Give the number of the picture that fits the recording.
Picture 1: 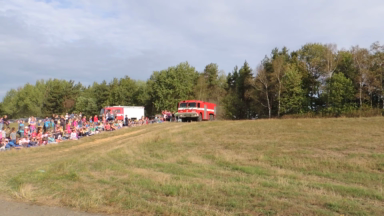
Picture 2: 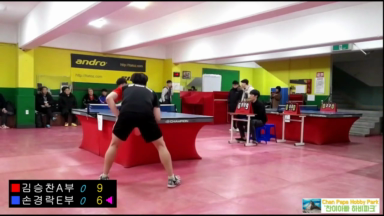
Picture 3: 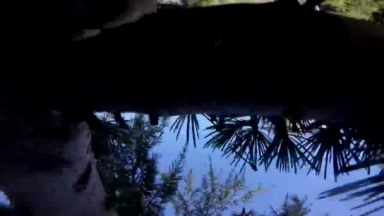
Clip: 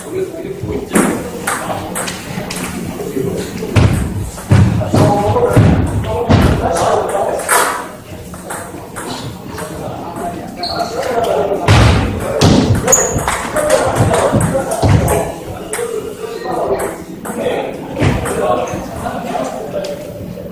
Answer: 2